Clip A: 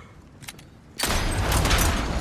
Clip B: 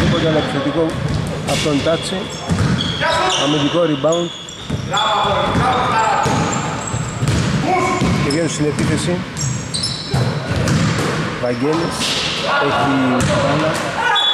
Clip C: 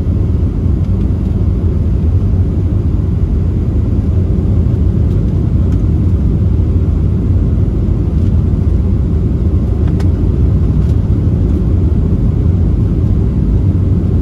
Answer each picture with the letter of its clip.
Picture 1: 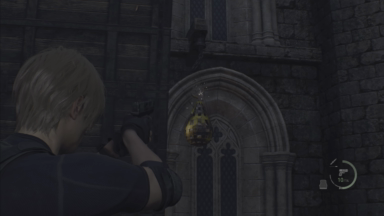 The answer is A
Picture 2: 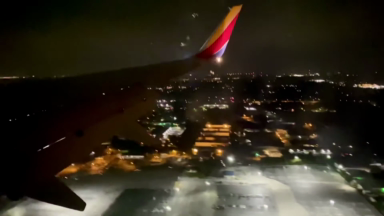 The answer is C